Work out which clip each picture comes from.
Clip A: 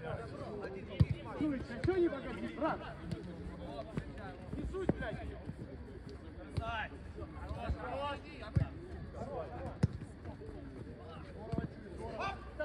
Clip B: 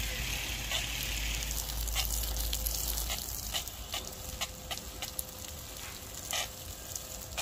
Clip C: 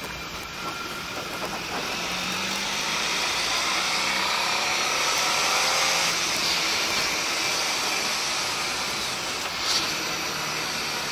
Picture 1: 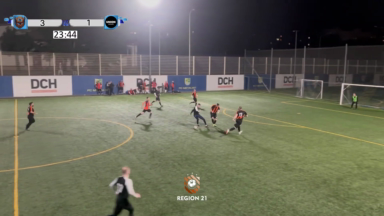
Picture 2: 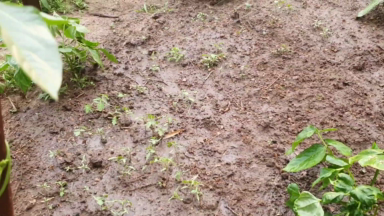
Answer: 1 A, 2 B